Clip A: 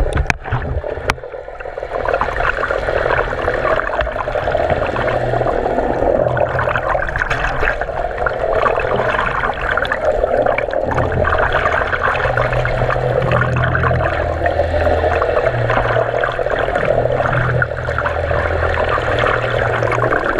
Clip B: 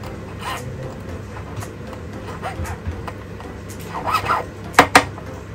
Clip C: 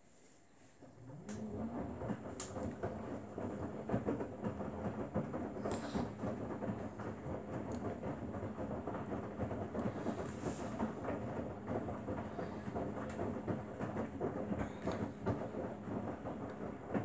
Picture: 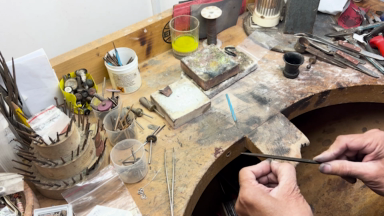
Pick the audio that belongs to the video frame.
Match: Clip B